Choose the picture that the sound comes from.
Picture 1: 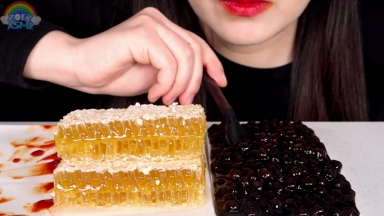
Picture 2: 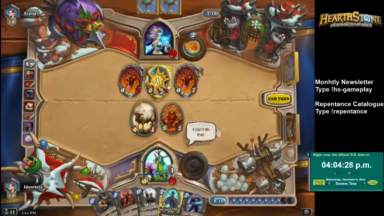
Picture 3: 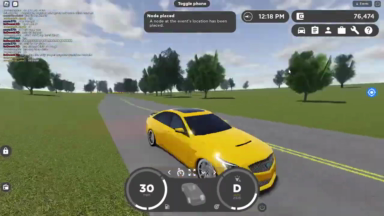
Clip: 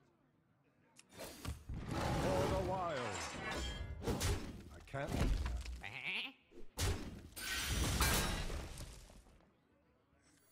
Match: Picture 2